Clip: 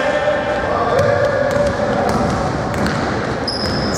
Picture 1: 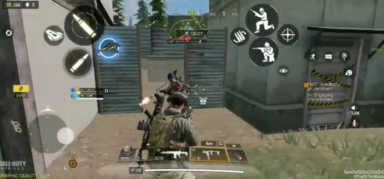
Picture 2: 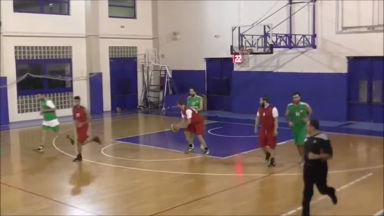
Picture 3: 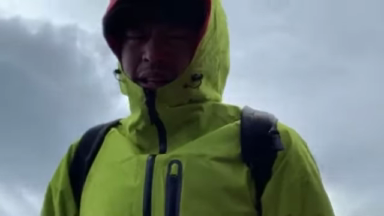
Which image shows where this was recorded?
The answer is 2